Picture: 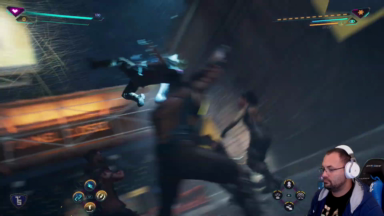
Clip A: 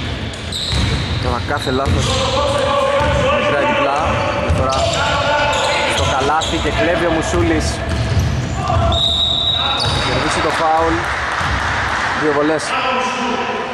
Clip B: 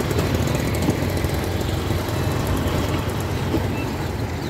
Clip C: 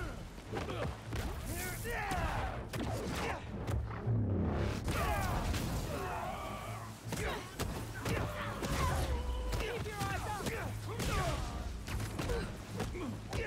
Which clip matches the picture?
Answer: C